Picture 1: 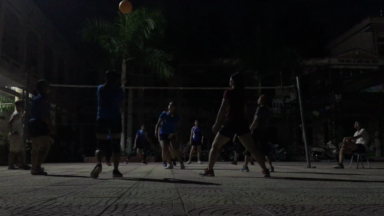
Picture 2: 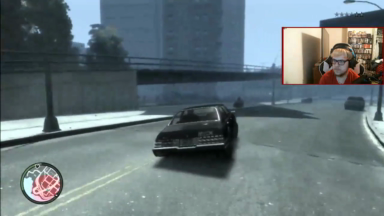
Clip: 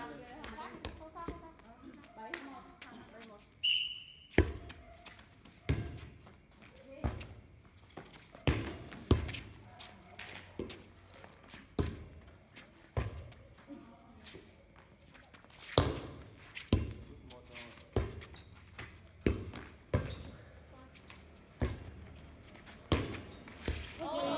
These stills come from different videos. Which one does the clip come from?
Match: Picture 1